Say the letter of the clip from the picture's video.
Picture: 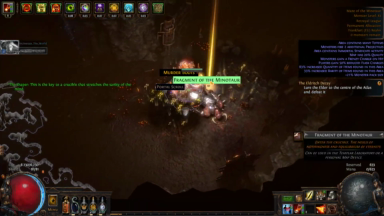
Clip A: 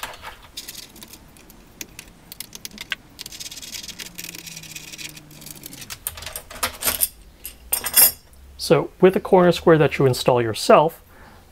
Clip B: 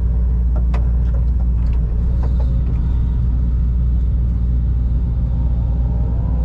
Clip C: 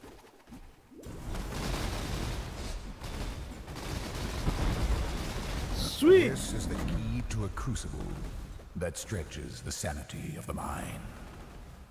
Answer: C